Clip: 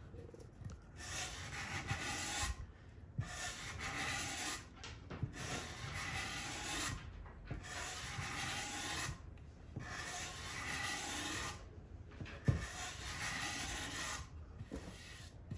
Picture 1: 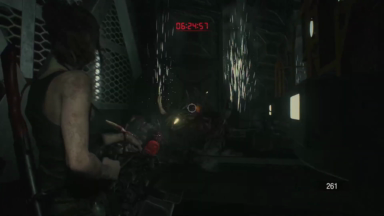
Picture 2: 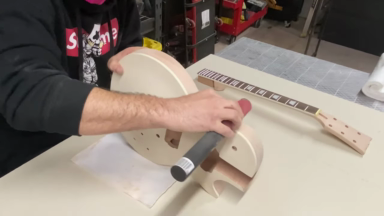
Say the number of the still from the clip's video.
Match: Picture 2